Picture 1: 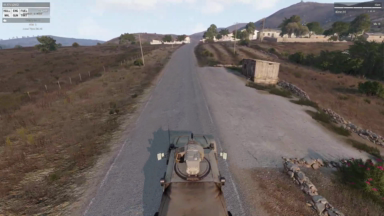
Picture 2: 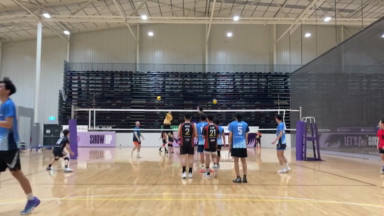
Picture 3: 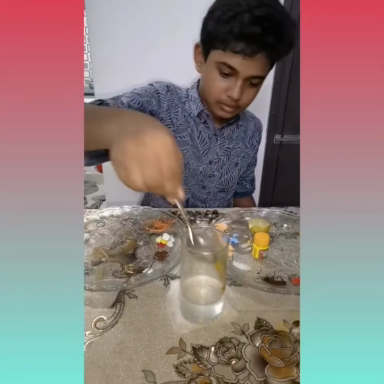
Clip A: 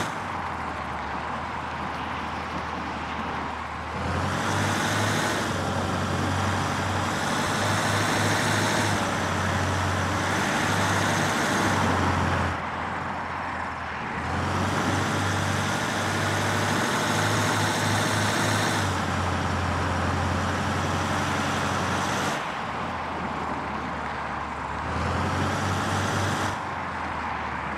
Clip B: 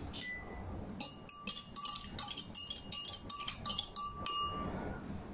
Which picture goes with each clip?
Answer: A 1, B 3